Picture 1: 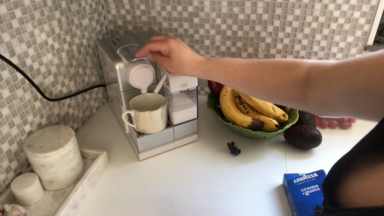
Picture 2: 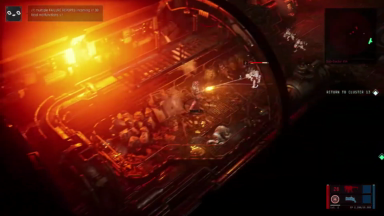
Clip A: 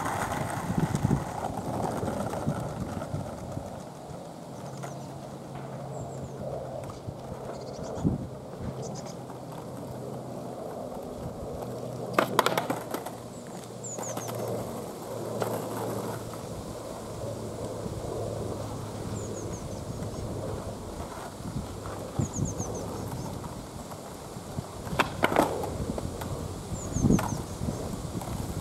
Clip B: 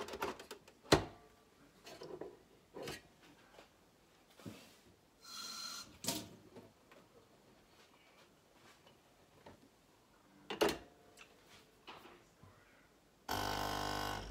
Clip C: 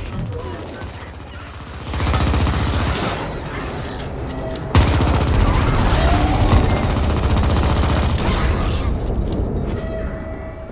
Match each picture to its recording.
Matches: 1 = B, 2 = C